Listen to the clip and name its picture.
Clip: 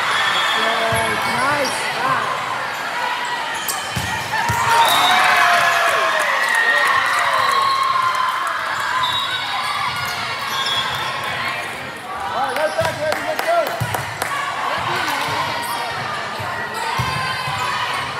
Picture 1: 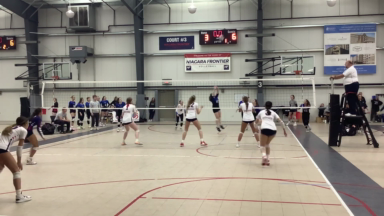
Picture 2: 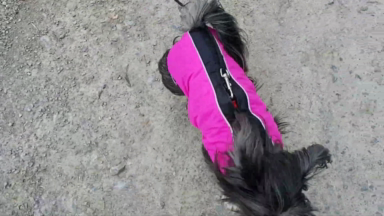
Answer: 1